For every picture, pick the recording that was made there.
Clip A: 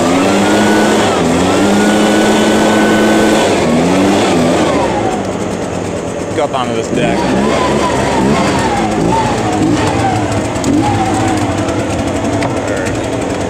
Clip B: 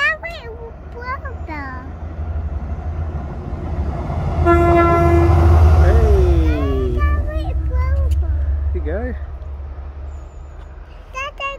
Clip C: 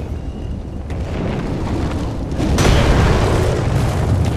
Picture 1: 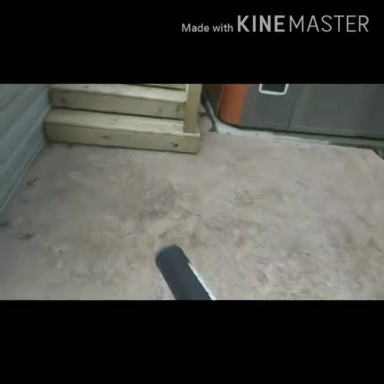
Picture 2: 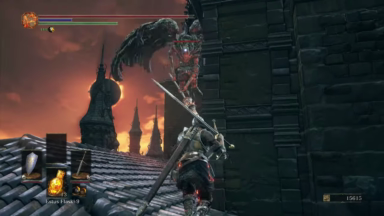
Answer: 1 A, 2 C